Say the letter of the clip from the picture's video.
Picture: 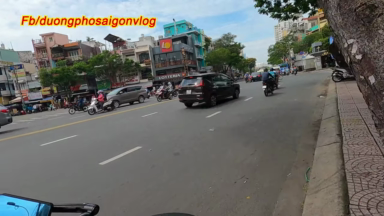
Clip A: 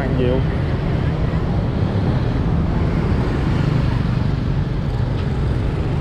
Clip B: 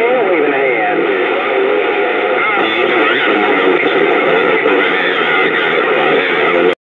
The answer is A